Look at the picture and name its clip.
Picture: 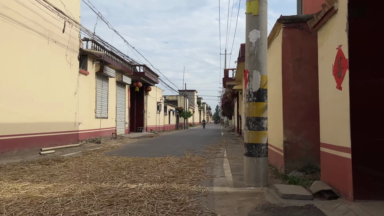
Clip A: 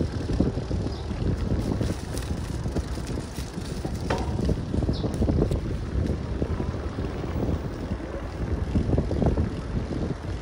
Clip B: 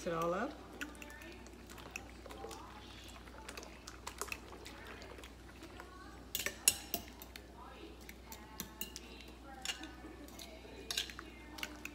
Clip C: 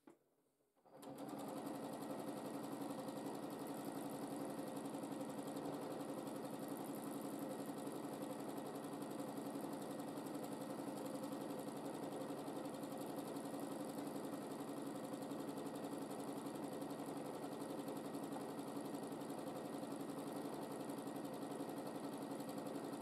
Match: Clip A